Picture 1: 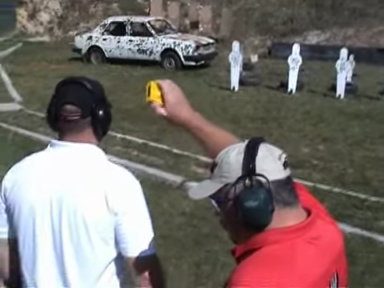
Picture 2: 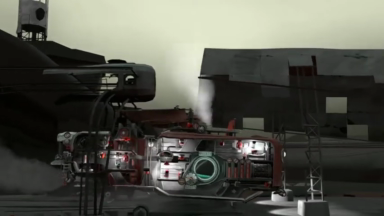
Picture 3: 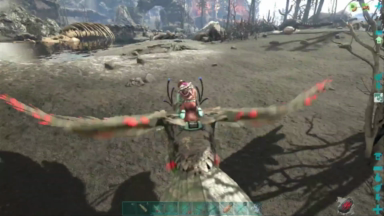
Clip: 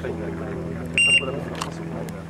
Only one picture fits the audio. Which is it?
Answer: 1